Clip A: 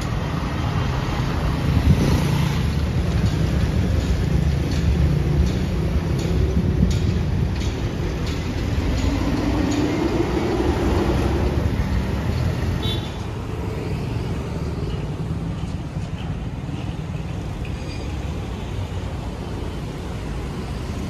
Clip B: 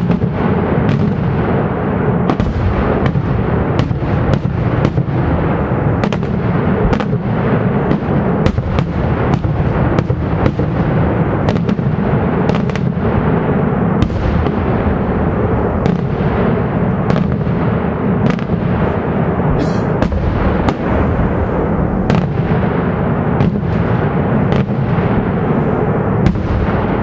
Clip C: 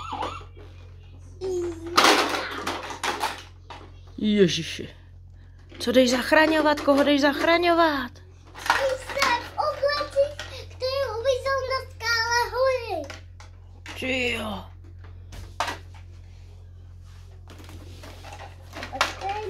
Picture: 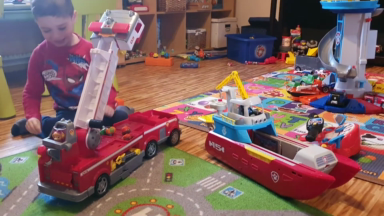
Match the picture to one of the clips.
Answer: C